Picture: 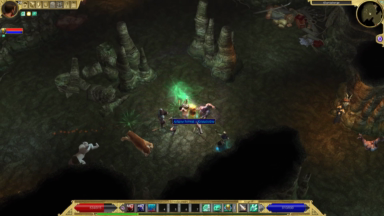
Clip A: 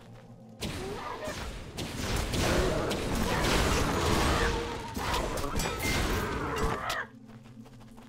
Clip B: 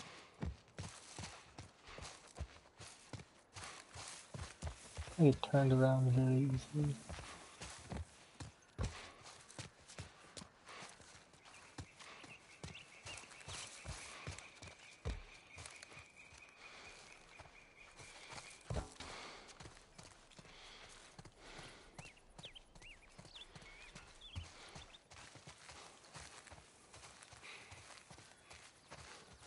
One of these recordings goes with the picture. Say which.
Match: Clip A